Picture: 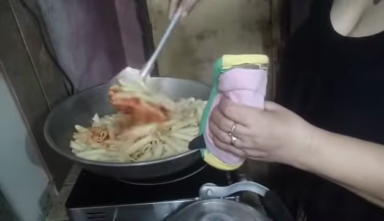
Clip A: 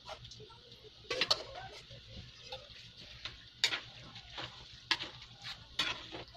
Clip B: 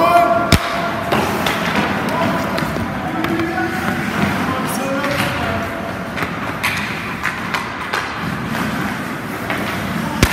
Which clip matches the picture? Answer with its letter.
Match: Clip A